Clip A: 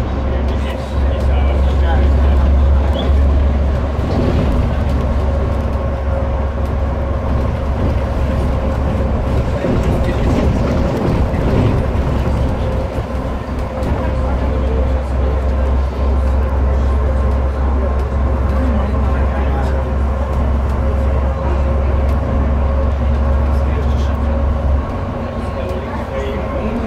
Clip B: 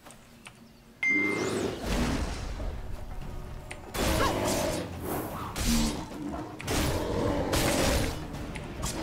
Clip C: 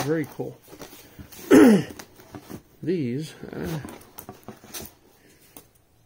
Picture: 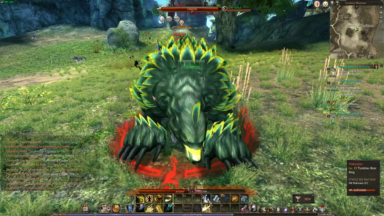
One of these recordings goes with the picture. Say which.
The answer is B